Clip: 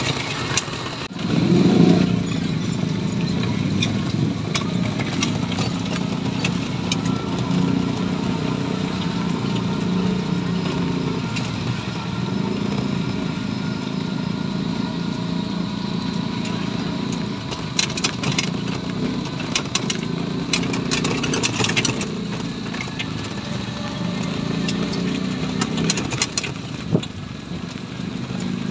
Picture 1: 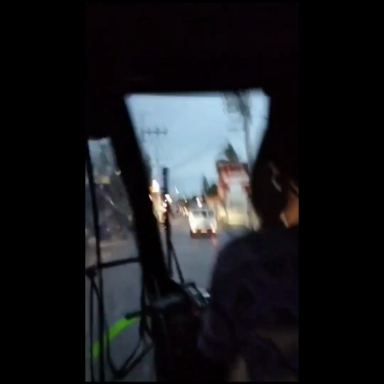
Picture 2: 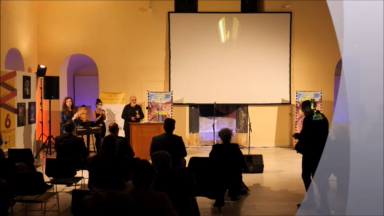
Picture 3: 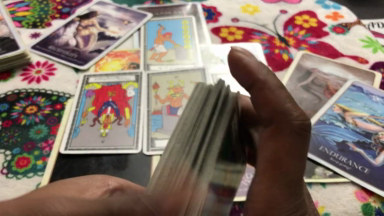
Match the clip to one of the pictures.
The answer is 1